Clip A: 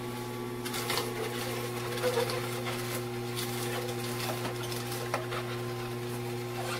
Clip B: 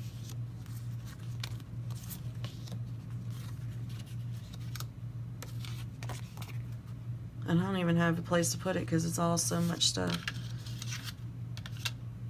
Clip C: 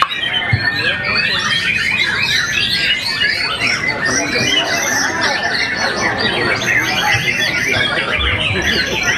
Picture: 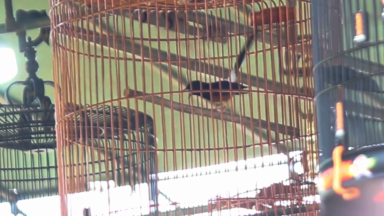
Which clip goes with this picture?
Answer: C